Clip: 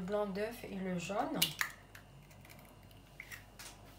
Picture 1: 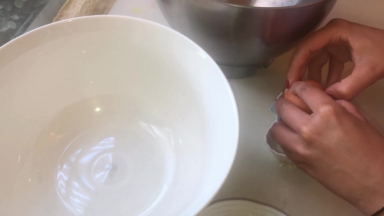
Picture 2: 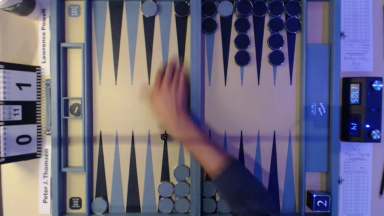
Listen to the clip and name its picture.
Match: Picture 1